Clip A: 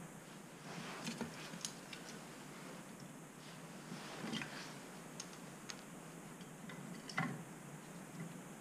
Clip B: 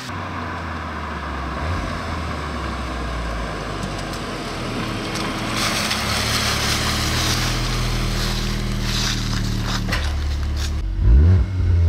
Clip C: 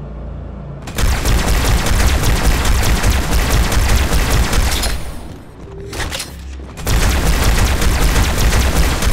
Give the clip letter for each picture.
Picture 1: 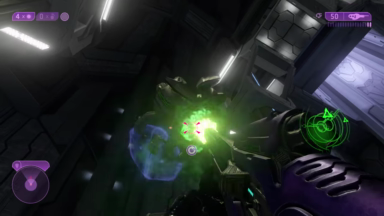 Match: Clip C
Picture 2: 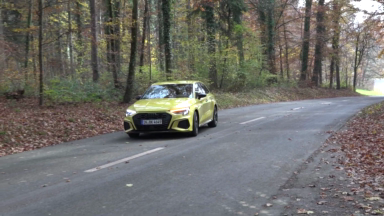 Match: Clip B